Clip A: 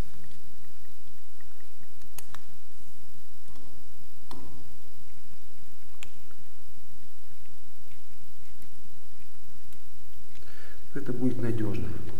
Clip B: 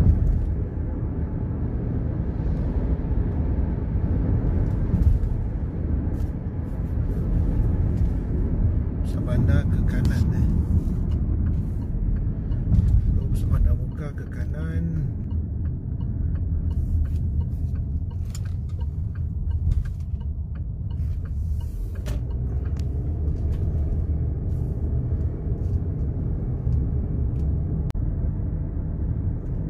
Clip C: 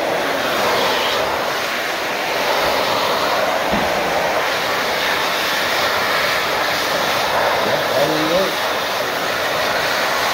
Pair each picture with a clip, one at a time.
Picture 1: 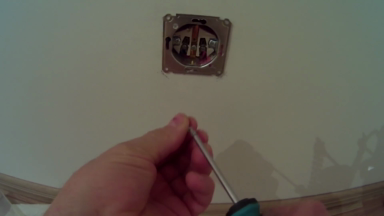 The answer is A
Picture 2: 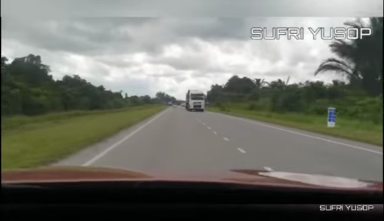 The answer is B